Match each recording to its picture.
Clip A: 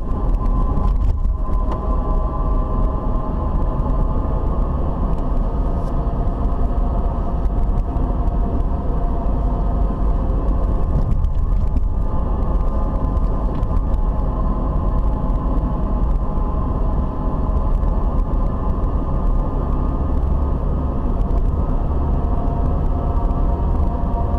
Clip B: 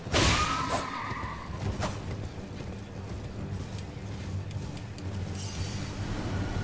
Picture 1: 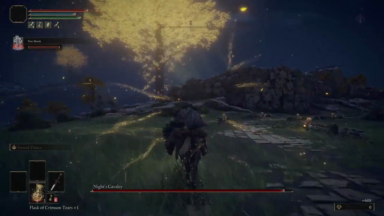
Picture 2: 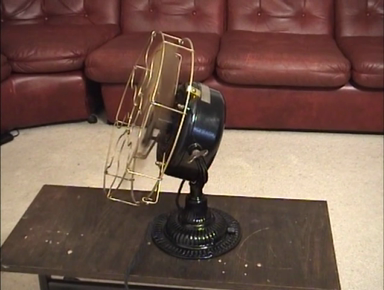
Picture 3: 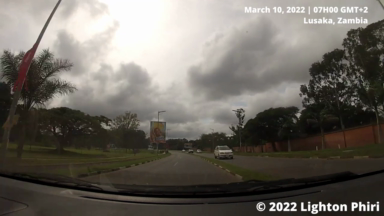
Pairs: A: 3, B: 1